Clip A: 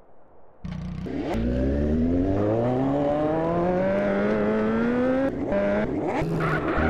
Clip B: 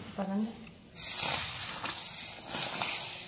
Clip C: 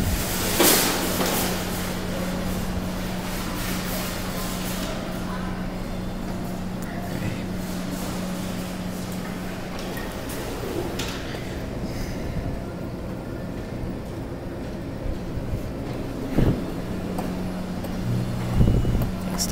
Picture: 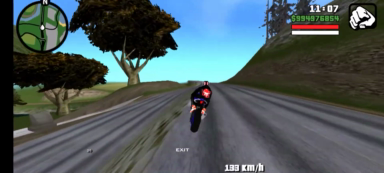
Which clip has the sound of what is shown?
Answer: A